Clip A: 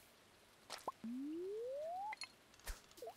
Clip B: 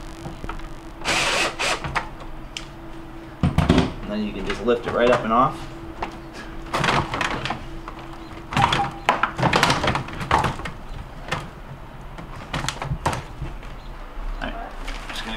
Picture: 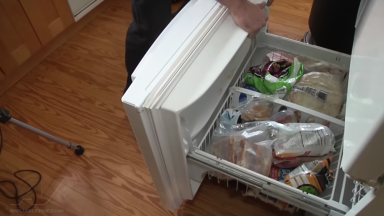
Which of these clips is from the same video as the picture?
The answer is B